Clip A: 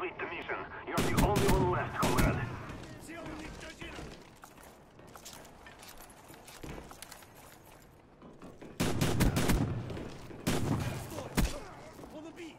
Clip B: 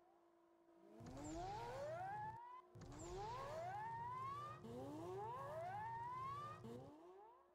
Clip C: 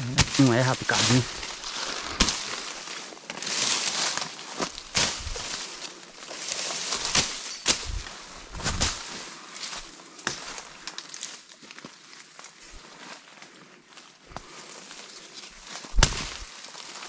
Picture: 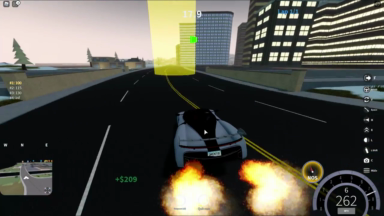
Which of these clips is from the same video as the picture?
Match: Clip B